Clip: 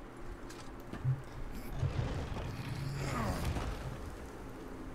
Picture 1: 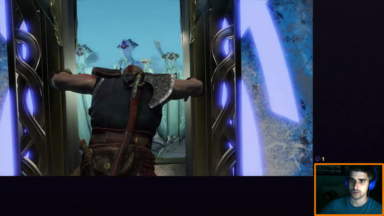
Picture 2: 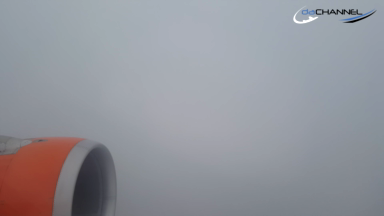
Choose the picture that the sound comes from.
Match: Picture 1